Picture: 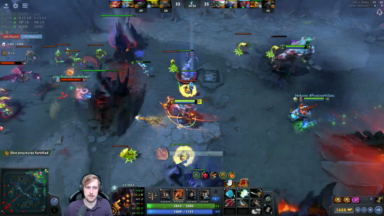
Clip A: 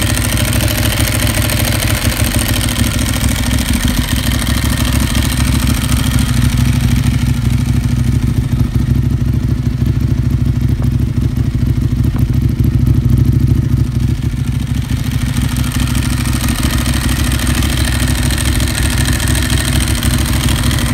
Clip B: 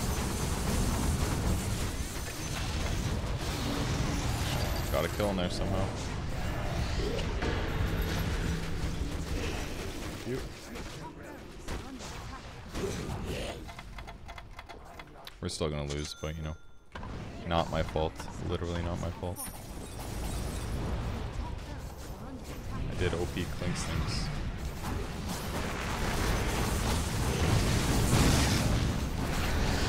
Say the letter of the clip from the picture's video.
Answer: B